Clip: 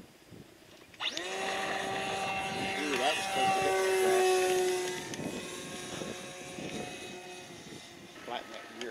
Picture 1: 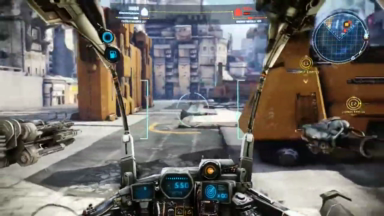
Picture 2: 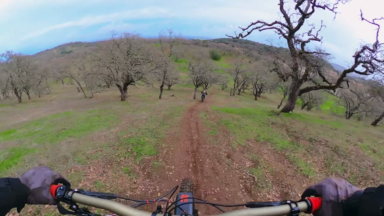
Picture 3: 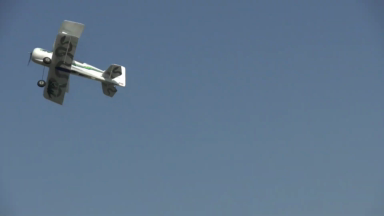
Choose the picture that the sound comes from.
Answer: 3